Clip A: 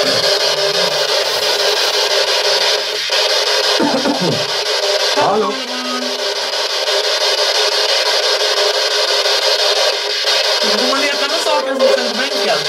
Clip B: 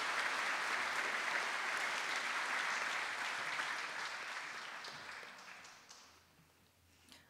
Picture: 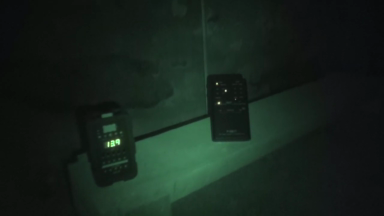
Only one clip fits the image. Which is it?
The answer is A